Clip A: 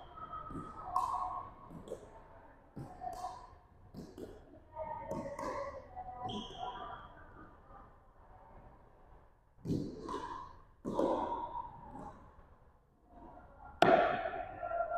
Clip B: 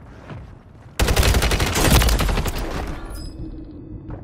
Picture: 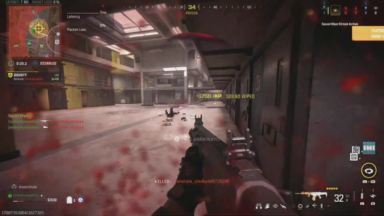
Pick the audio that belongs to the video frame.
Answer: B